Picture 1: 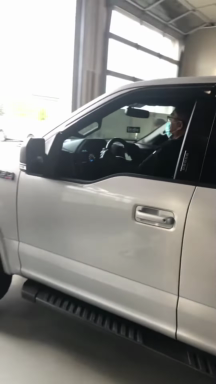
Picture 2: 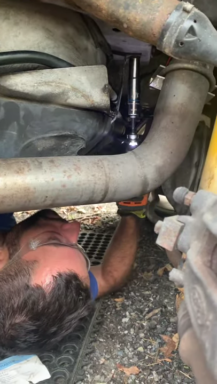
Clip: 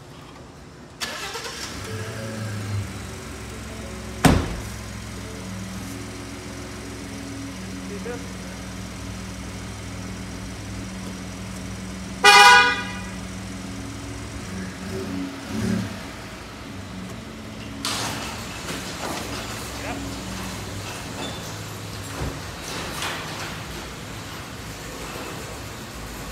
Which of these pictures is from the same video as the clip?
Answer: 1